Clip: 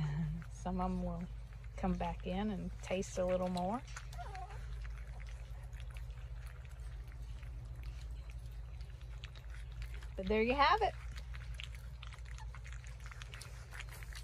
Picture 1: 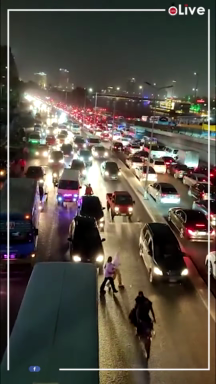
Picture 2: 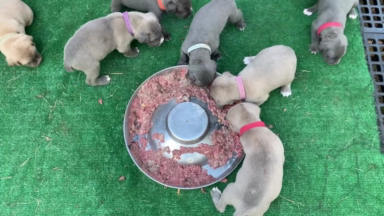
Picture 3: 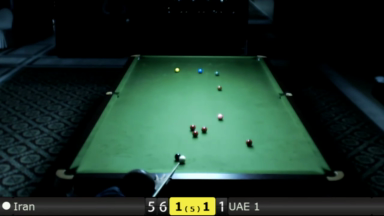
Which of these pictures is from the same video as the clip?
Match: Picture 2